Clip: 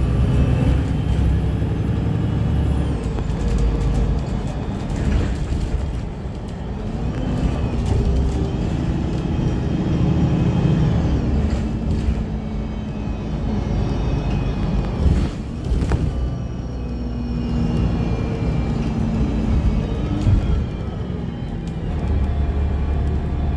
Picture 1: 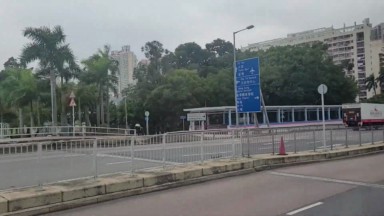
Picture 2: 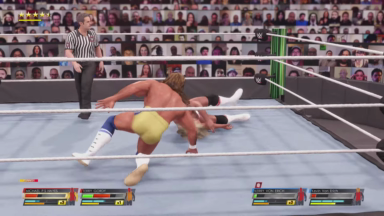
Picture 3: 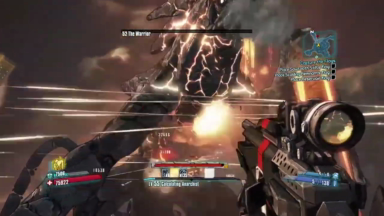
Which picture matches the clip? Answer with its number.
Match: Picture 1